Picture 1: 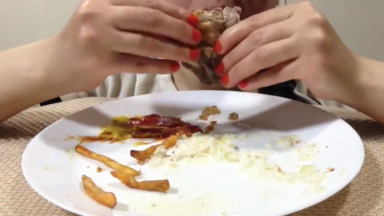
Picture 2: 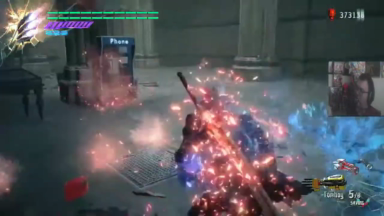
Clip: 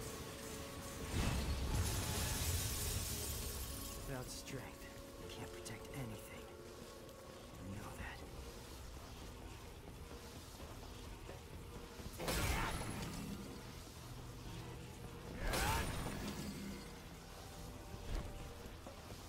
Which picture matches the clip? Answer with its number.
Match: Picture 2